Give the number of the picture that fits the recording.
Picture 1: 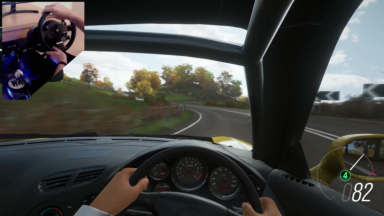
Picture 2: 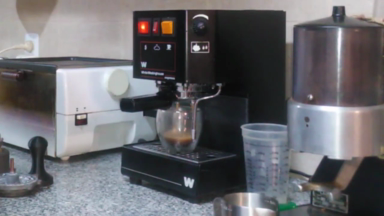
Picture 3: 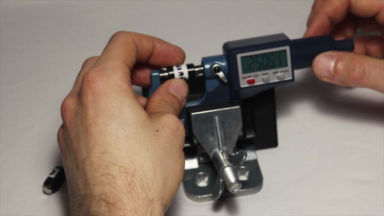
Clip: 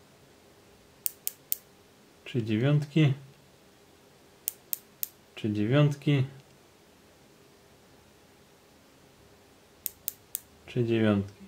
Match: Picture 3